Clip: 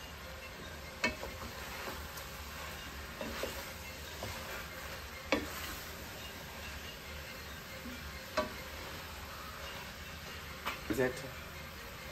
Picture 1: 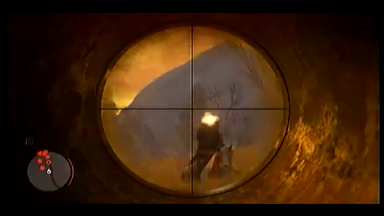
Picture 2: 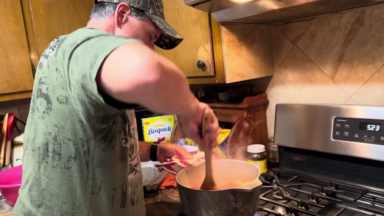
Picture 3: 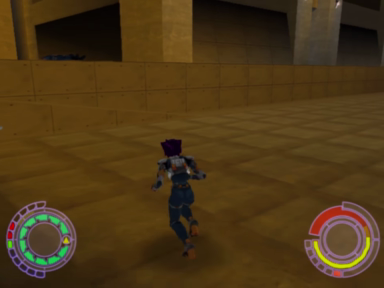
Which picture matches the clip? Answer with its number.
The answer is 2